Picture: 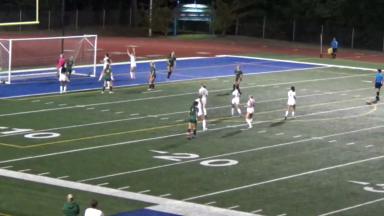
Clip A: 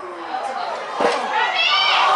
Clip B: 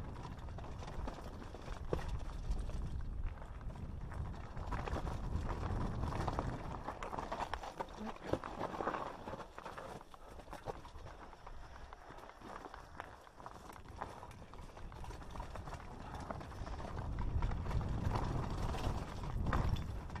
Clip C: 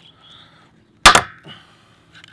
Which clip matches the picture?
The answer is A